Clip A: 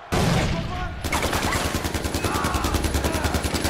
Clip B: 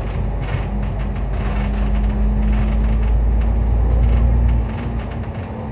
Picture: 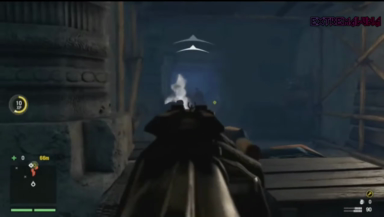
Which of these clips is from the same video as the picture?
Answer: A